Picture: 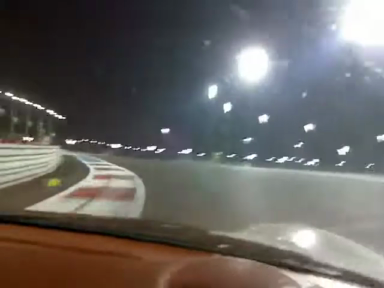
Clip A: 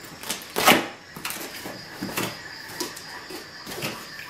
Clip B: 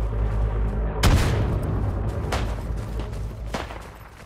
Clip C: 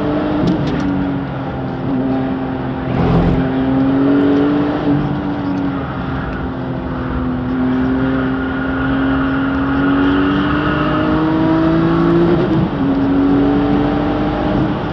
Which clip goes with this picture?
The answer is C